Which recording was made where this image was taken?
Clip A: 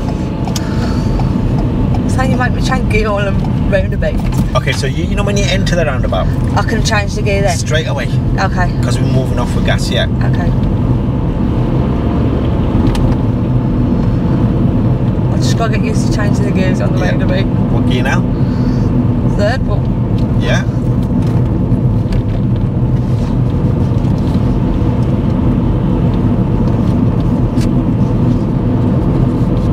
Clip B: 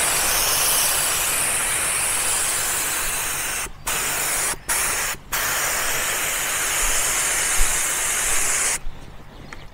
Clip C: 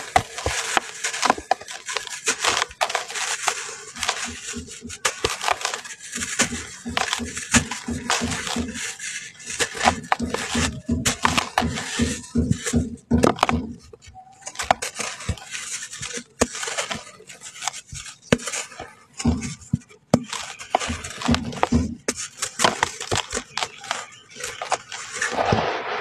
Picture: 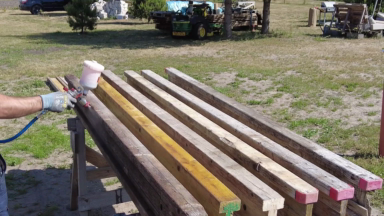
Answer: B